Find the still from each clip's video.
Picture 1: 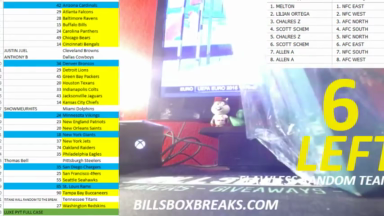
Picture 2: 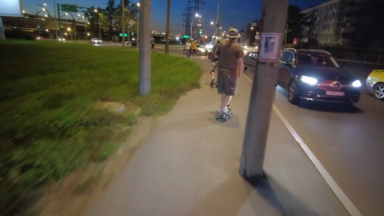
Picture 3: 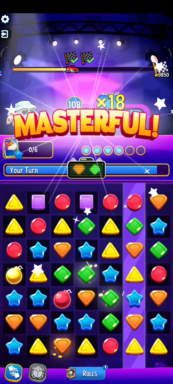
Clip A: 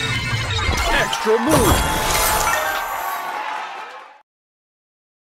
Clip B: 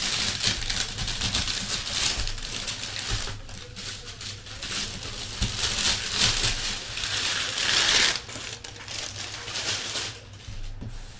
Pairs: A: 3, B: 1